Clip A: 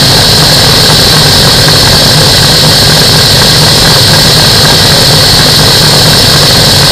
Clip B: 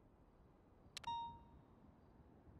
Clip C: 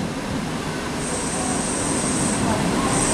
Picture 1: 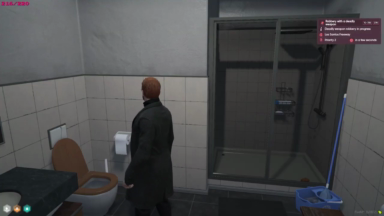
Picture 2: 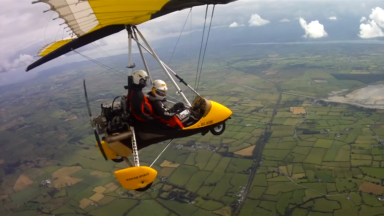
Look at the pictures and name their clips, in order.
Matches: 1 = B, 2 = A